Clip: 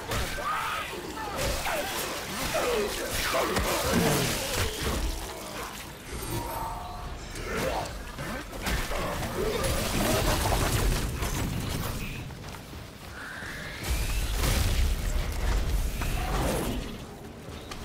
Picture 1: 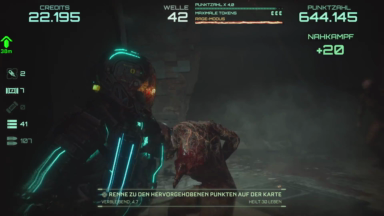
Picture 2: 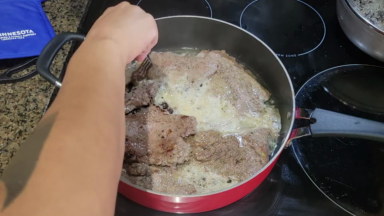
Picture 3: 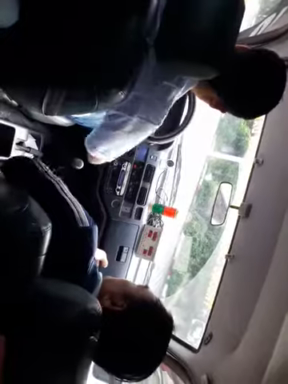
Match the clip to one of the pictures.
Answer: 1